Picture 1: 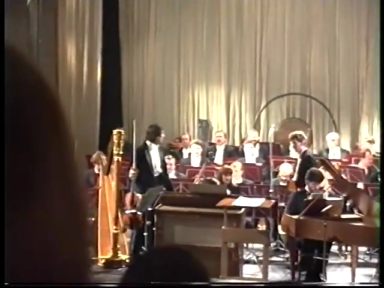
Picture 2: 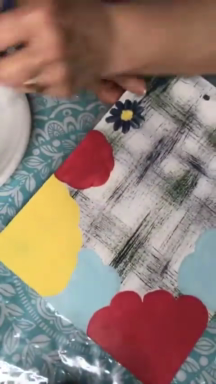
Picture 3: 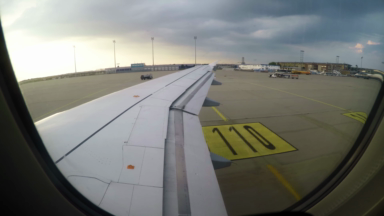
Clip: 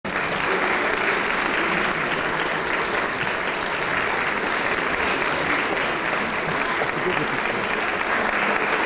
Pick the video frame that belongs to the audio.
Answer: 1